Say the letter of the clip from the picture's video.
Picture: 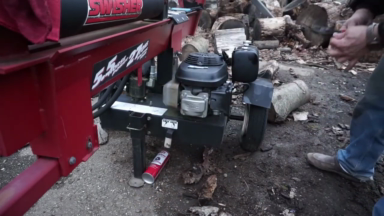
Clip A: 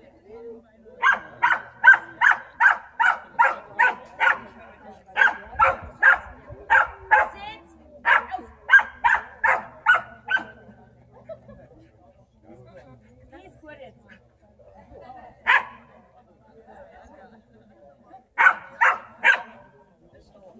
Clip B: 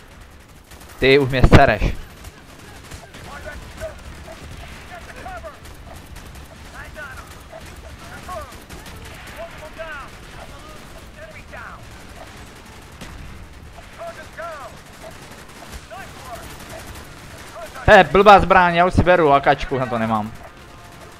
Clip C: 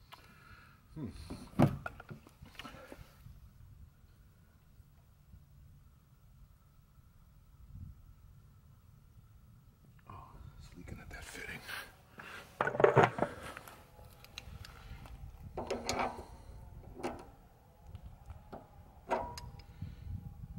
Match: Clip C